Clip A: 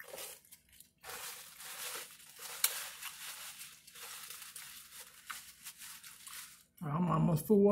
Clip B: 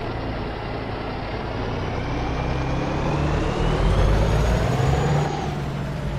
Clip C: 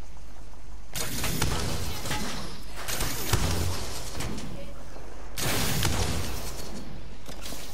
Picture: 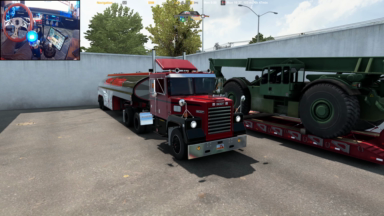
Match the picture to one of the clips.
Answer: B